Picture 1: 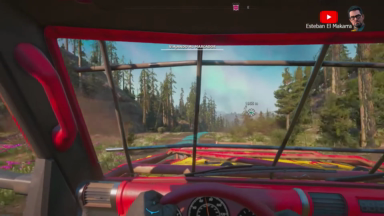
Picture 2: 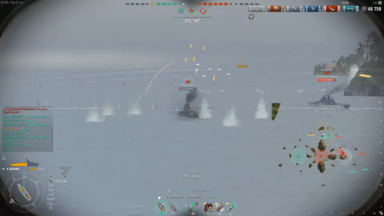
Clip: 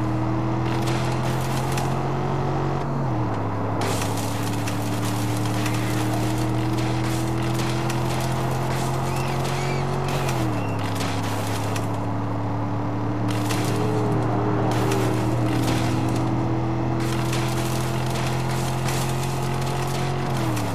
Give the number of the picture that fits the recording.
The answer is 1